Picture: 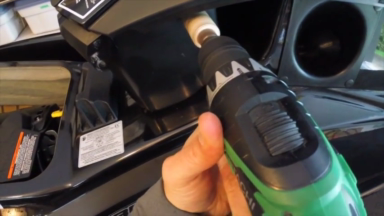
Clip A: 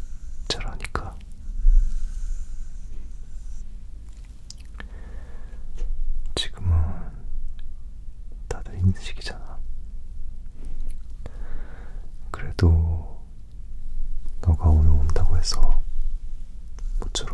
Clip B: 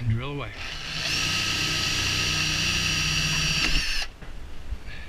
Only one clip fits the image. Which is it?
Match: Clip B